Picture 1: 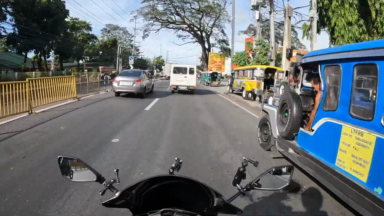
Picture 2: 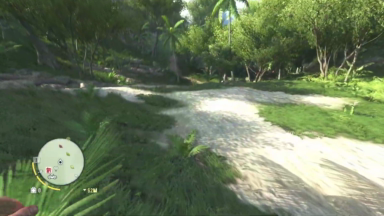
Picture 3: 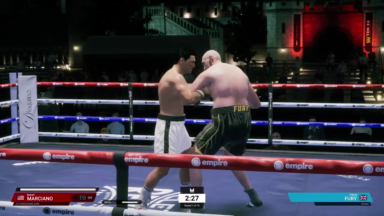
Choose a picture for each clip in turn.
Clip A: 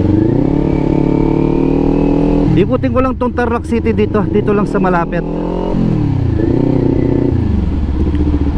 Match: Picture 1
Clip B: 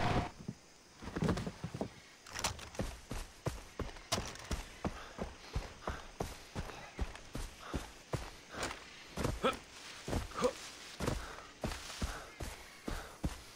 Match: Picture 2